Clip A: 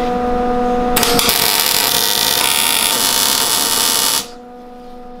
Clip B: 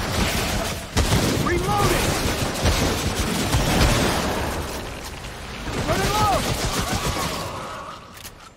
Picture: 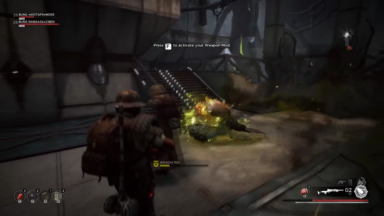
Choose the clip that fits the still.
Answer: B